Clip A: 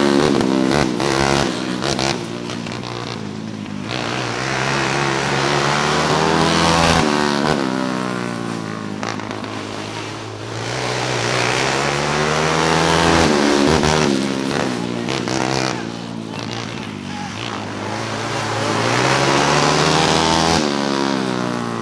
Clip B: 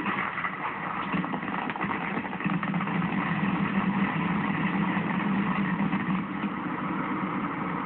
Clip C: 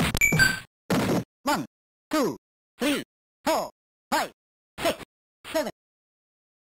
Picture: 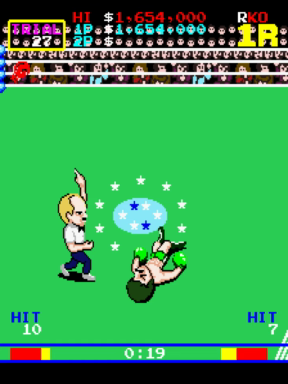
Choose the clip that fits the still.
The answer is C